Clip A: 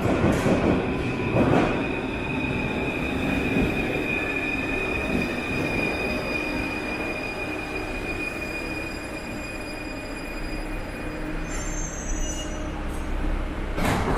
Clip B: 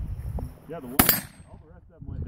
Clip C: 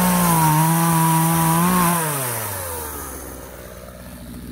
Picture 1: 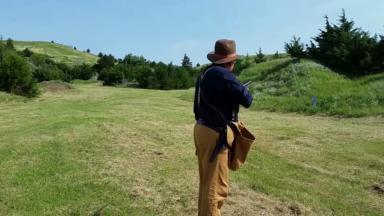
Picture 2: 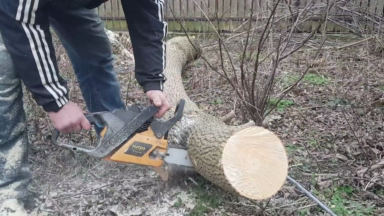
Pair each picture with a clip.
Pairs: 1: B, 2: C